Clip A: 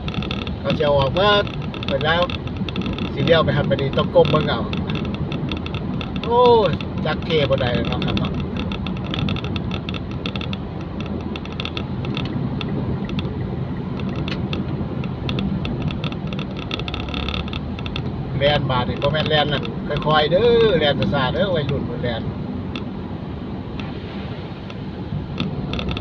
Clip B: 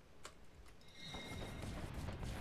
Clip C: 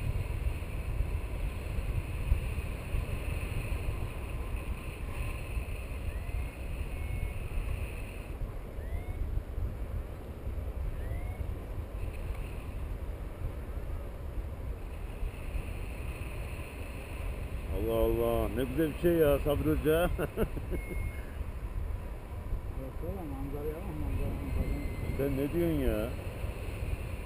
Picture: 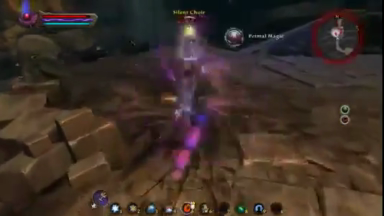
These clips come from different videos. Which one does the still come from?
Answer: B